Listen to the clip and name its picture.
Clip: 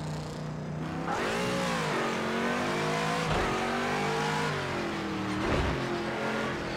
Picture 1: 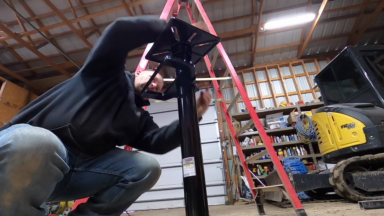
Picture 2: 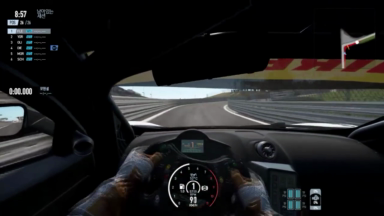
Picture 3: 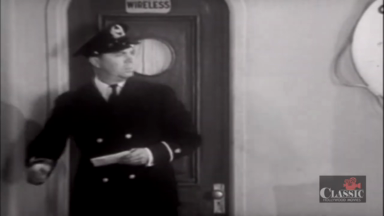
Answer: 2